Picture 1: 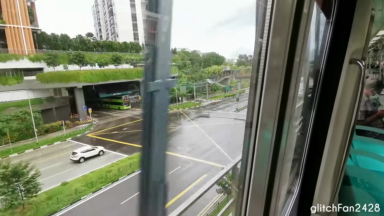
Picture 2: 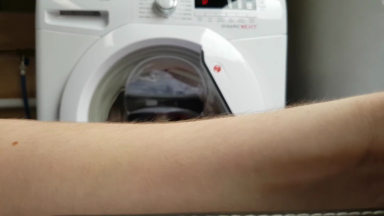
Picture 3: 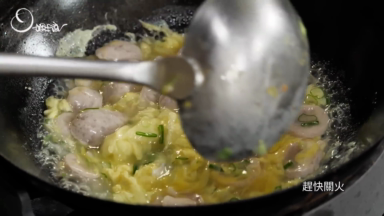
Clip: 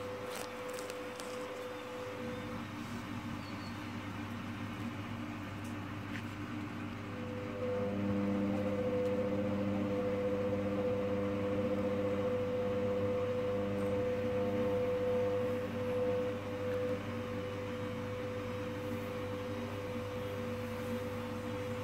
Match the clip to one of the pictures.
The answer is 2